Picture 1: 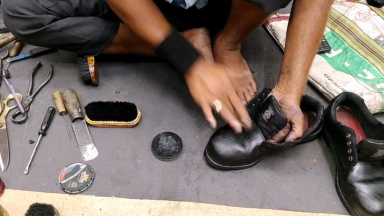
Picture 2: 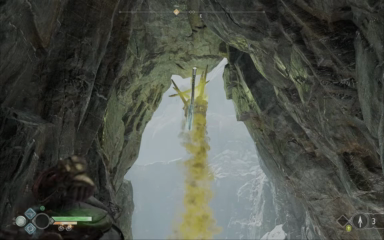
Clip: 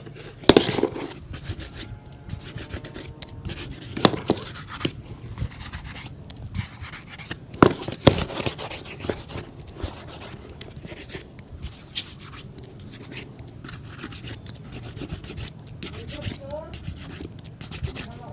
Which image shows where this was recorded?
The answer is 1